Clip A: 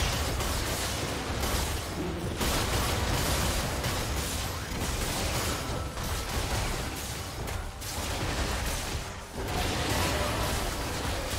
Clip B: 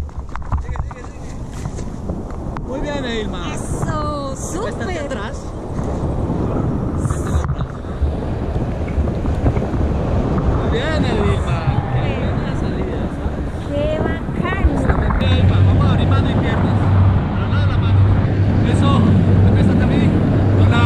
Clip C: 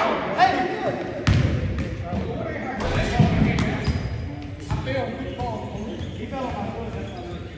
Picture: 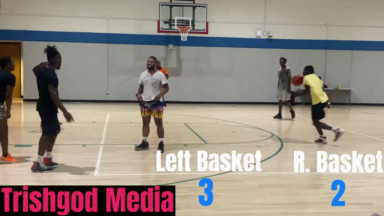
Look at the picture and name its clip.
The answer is C